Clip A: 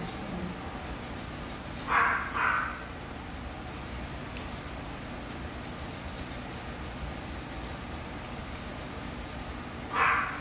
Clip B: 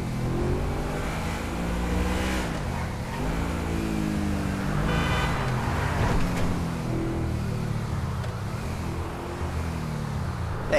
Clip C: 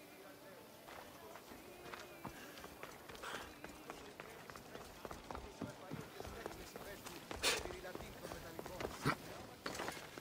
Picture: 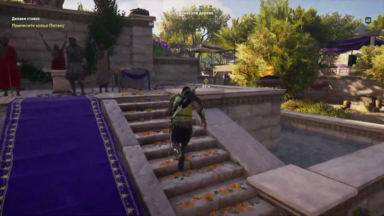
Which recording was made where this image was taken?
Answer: C